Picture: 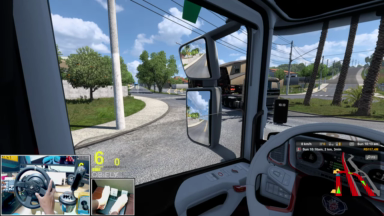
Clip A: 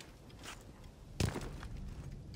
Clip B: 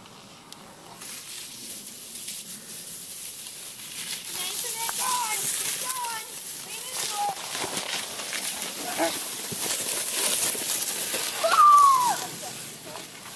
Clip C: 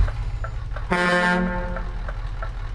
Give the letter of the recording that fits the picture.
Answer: C